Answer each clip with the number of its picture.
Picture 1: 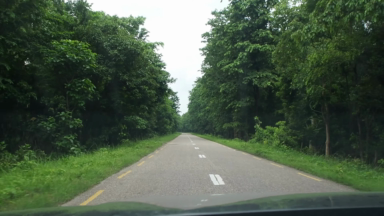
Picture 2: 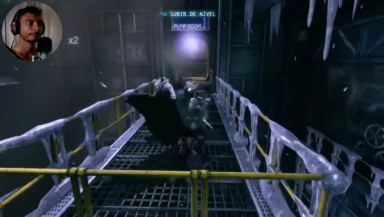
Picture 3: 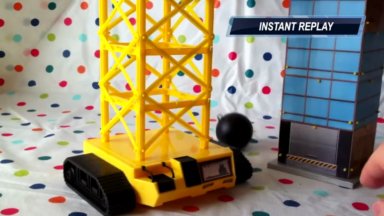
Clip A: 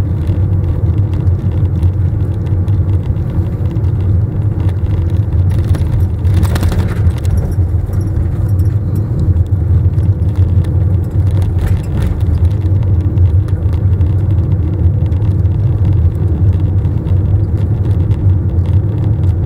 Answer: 1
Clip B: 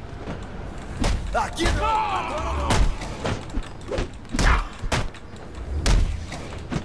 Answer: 2